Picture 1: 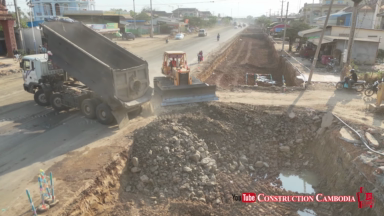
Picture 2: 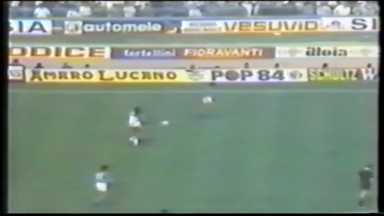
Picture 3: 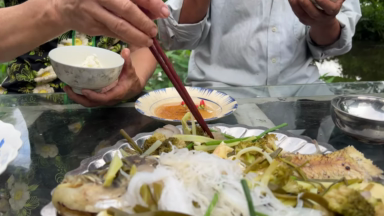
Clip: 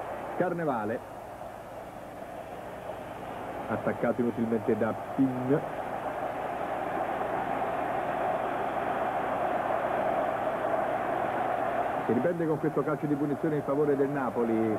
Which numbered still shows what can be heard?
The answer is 2